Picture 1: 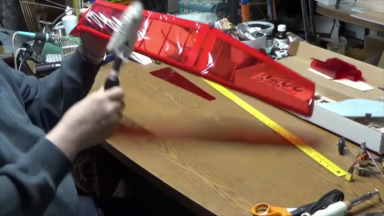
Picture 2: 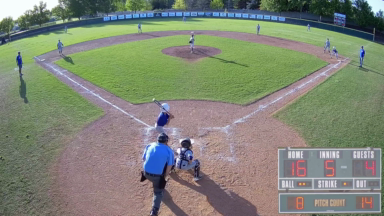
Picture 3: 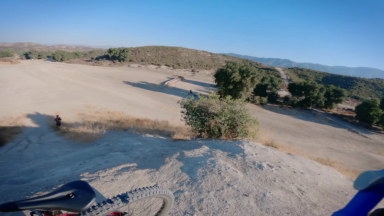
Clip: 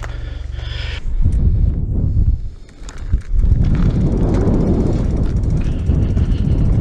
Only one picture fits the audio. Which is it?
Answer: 3